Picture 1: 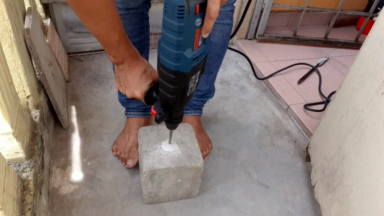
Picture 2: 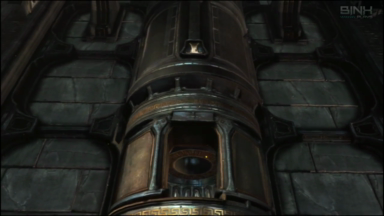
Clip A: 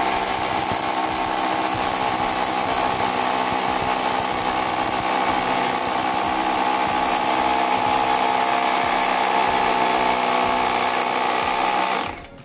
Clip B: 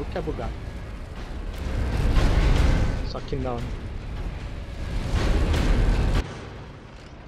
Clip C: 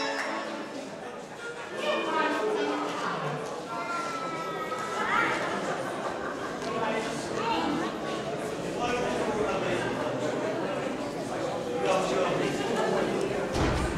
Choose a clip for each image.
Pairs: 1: A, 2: B